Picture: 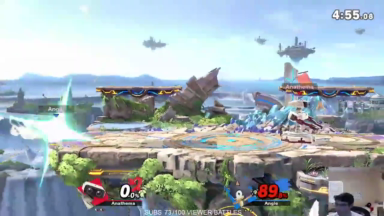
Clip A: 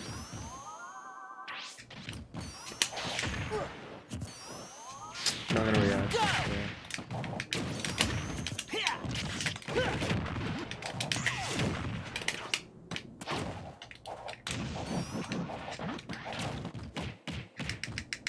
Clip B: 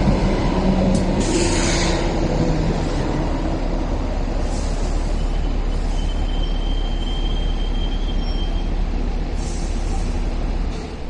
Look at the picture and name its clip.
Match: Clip A